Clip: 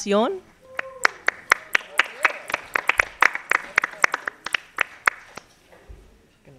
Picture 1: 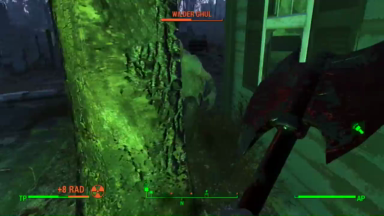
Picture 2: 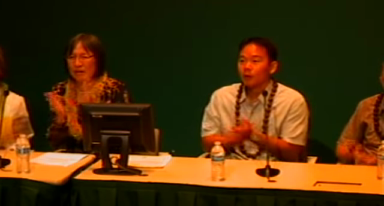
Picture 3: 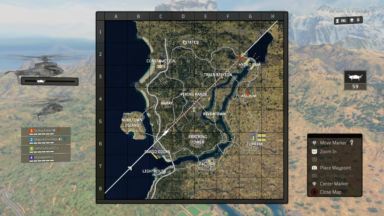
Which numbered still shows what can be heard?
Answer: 2